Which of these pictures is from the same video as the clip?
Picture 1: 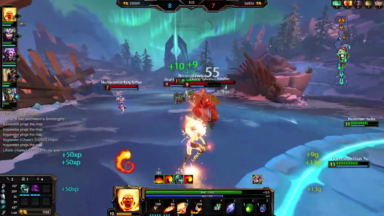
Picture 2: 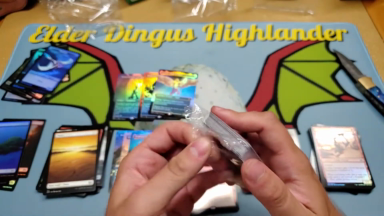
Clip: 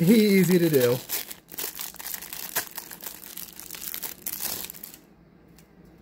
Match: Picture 2